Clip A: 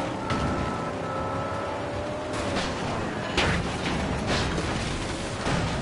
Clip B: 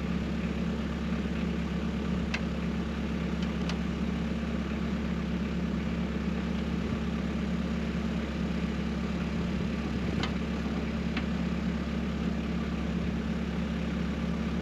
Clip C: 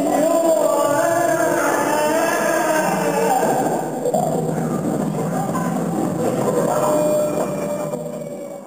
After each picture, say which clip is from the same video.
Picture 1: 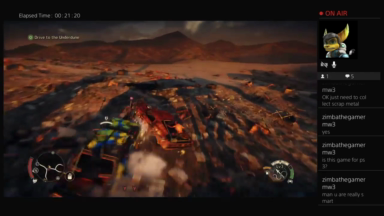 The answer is A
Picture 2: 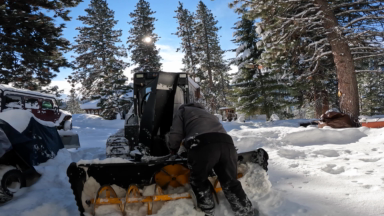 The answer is B